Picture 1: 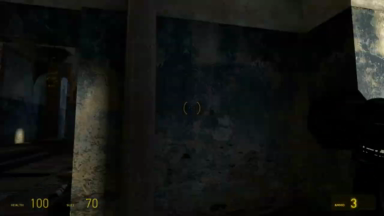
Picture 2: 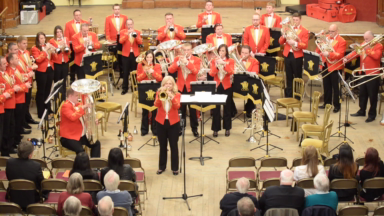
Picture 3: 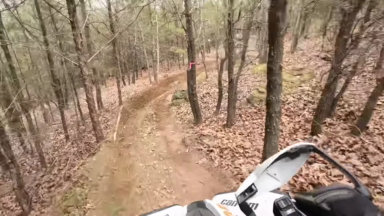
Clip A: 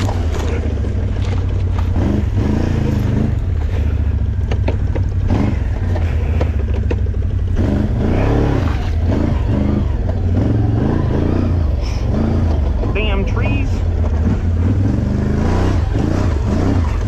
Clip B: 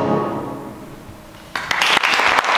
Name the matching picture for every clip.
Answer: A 3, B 2